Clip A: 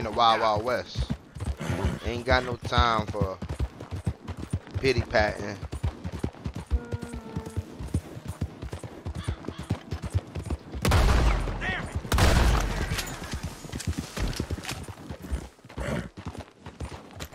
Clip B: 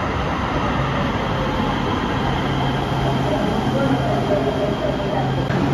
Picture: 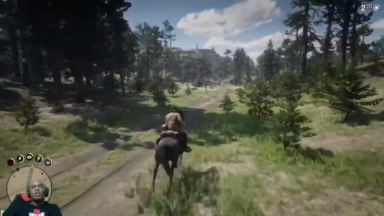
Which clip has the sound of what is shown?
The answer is A